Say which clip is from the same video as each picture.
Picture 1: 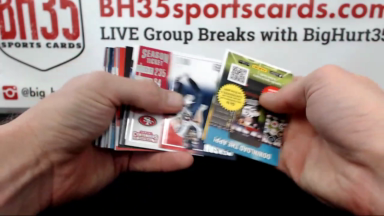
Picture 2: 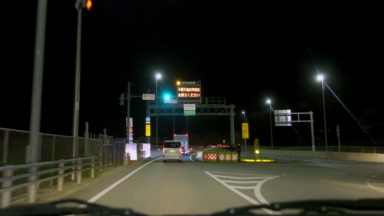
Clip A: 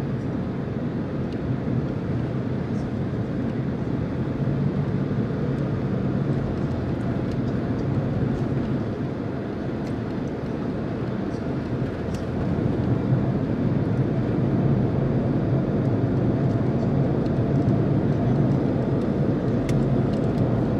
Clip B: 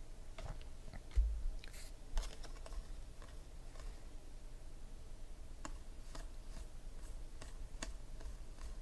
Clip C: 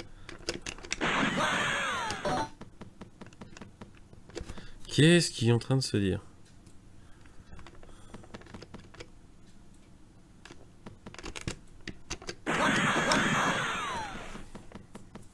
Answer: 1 B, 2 A